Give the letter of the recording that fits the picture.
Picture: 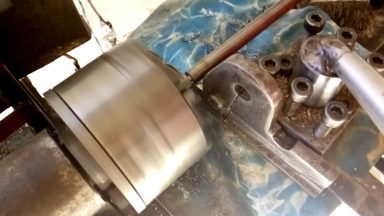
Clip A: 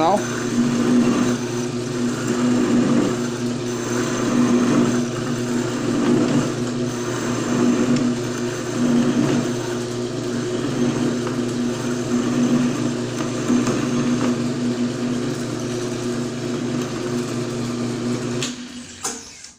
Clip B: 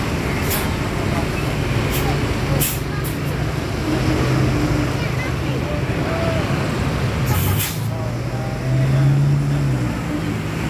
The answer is A